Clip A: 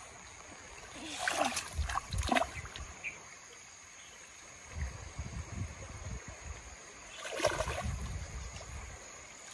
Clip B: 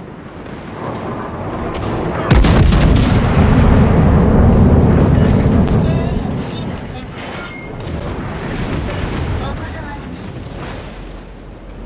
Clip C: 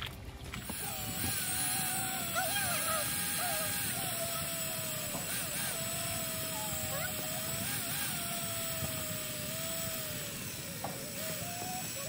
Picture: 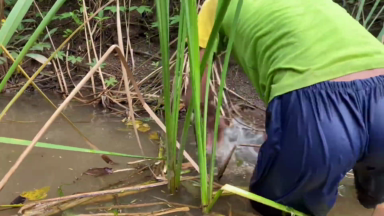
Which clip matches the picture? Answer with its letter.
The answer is A